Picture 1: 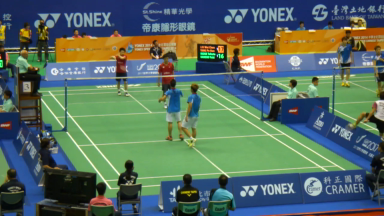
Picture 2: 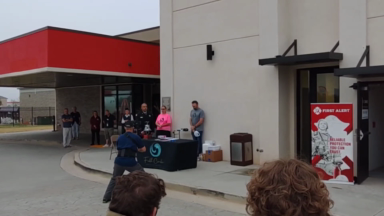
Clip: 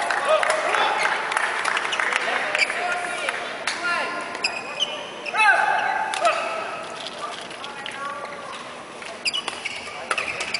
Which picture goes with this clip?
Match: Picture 1